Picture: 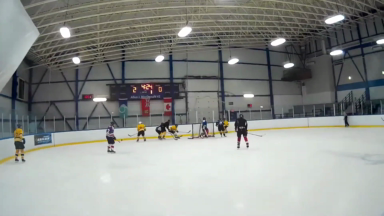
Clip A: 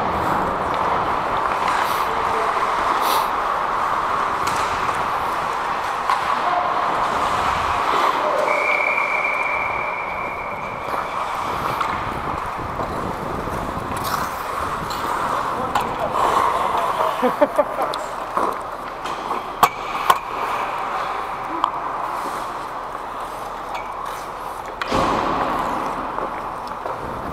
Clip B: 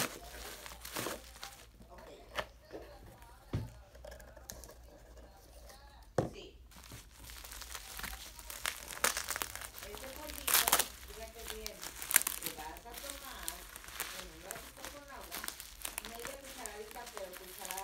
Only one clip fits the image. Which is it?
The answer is A